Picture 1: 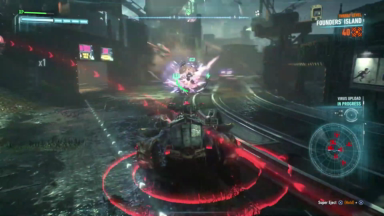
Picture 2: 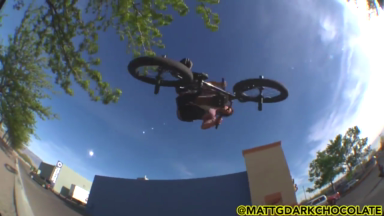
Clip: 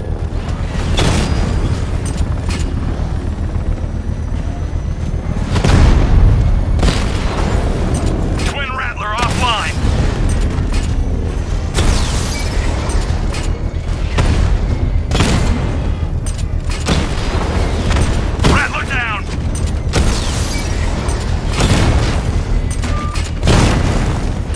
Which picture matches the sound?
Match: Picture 1